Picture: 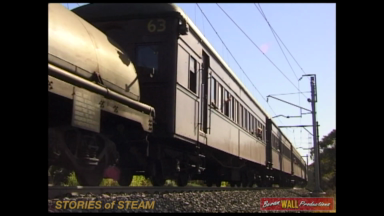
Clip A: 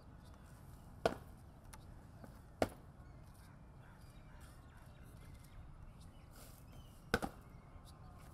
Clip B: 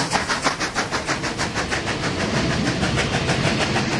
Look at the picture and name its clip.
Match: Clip B